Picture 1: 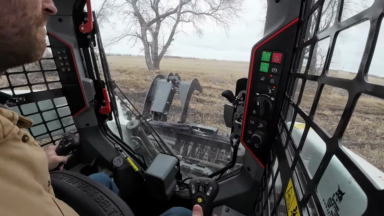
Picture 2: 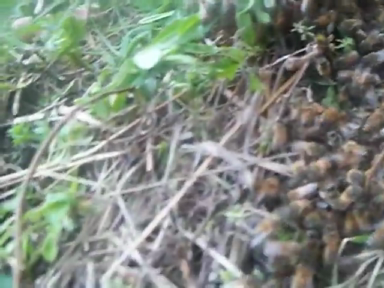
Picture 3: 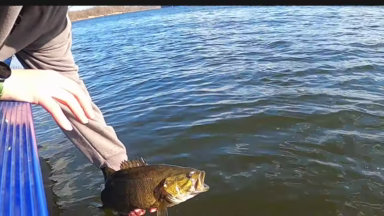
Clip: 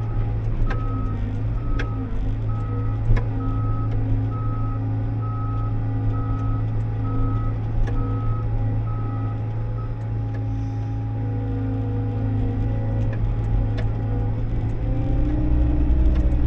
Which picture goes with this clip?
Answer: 1